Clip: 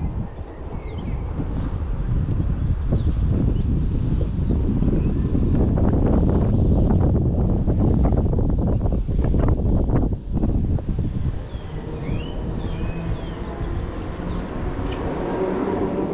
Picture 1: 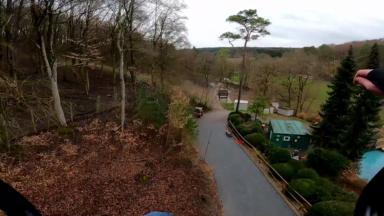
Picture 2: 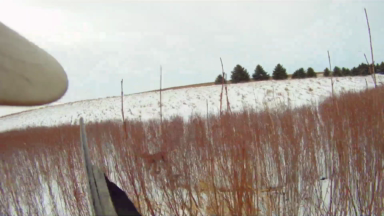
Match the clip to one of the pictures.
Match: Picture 1